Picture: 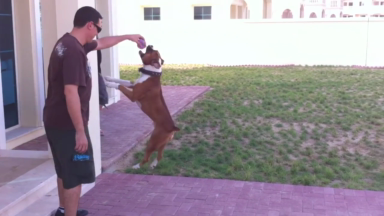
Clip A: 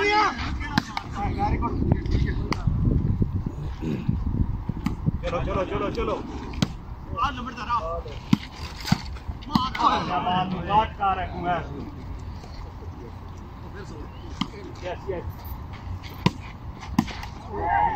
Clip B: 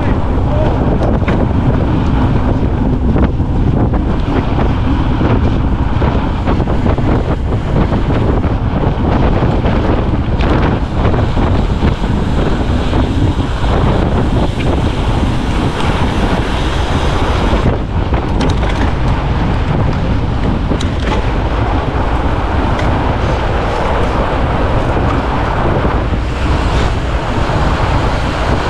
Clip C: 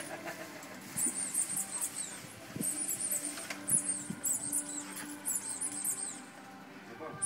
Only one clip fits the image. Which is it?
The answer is C